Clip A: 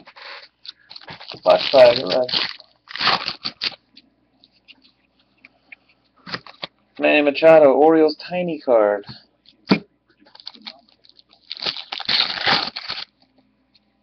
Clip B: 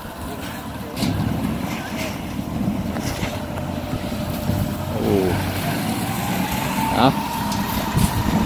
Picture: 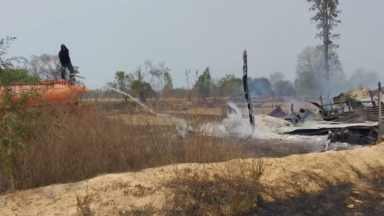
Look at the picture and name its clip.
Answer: B